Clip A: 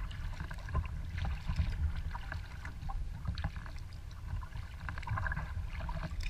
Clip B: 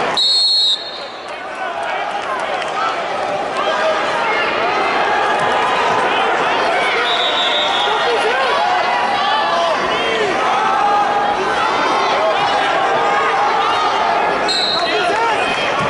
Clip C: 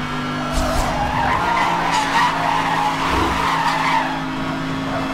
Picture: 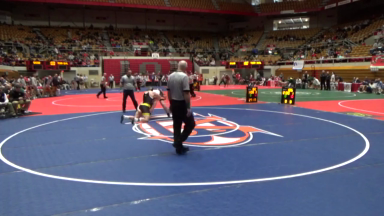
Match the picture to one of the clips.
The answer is B